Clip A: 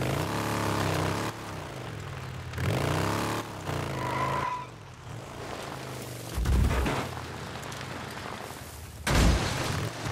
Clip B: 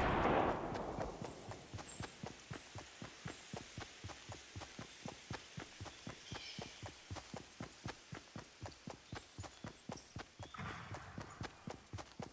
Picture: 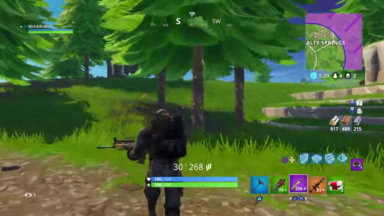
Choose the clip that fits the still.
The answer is B